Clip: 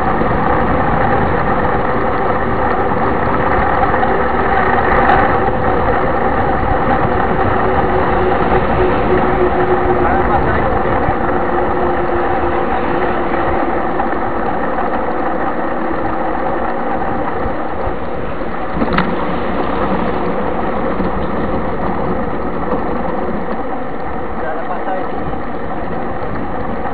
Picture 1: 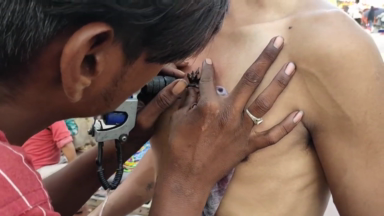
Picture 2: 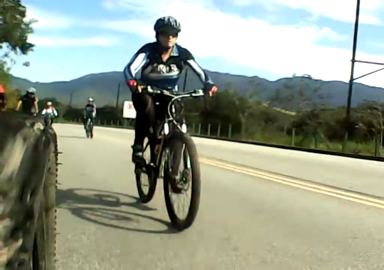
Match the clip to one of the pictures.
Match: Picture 2